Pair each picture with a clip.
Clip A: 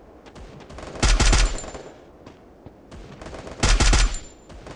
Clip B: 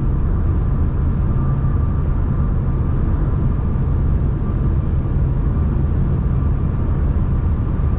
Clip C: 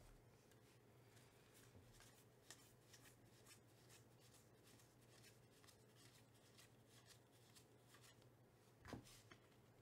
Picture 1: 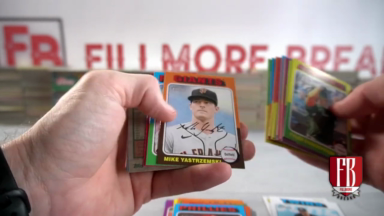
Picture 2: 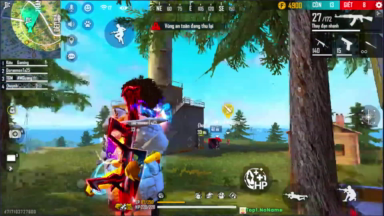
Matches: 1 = C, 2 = A